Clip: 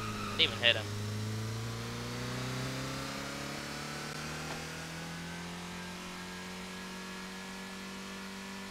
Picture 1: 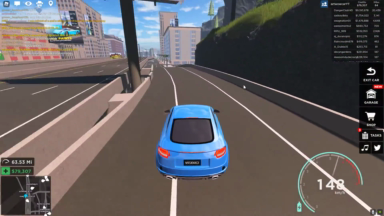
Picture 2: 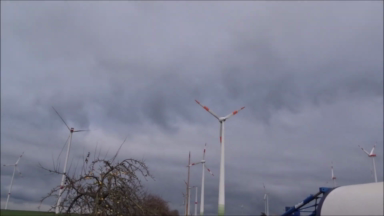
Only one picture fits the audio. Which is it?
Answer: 1